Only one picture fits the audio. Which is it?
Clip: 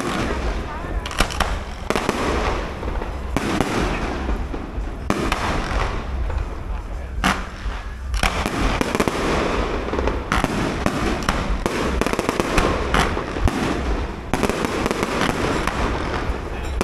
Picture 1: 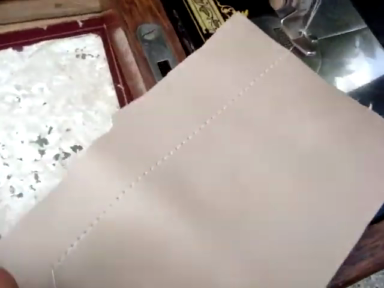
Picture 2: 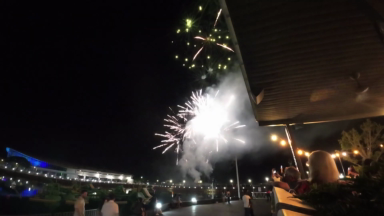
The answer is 2